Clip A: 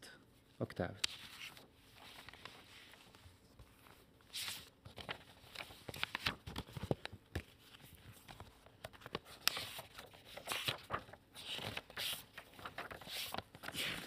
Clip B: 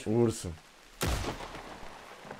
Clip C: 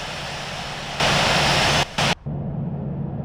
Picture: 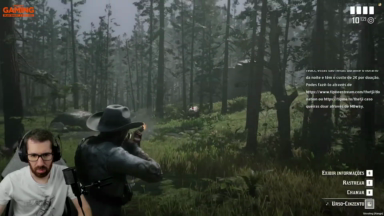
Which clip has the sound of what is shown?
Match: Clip B